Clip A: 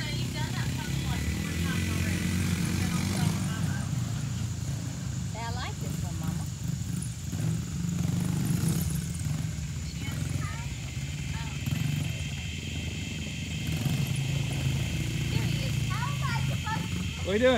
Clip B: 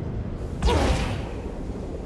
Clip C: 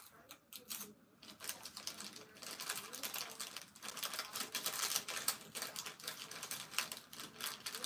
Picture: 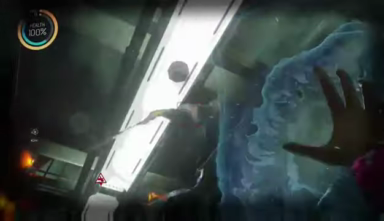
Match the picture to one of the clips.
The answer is B